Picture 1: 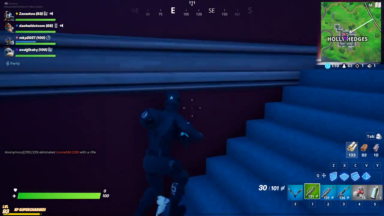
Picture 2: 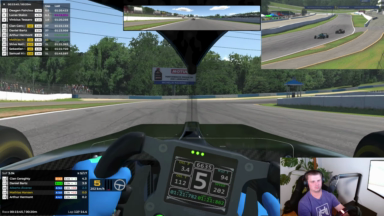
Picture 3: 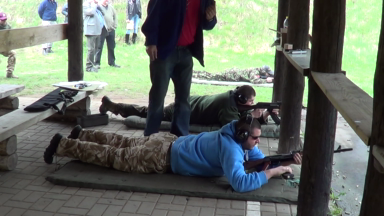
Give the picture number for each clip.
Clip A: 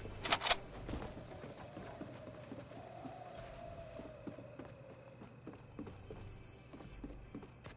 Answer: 1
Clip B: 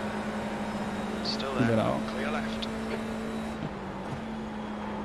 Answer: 2